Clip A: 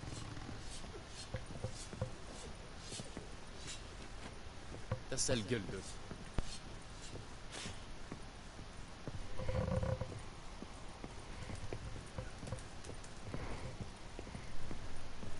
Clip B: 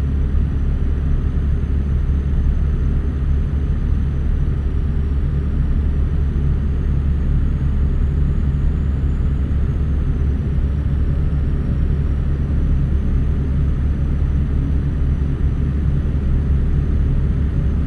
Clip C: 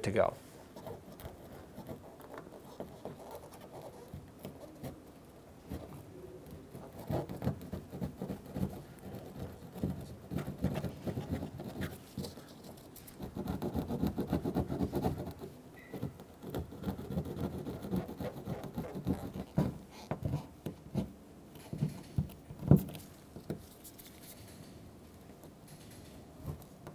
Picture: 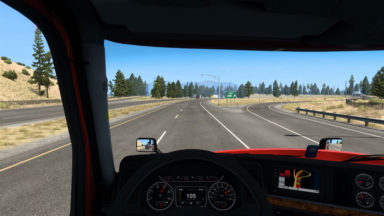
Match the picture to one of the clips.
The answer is B